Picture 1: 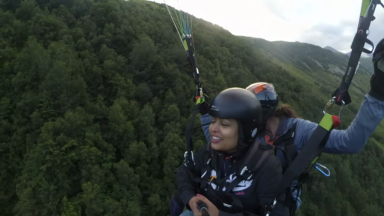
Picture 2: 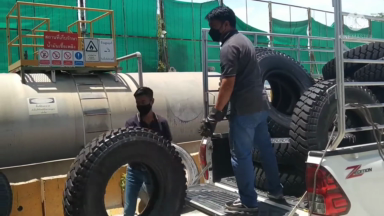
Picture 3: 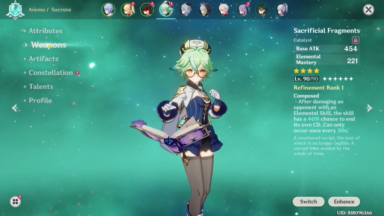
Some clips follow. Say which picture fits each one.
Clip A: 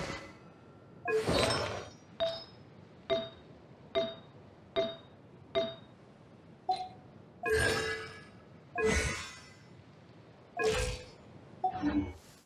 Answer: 3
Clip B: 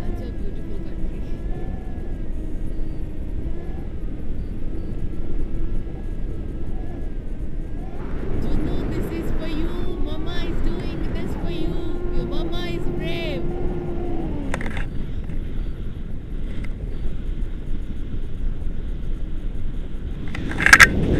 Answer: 1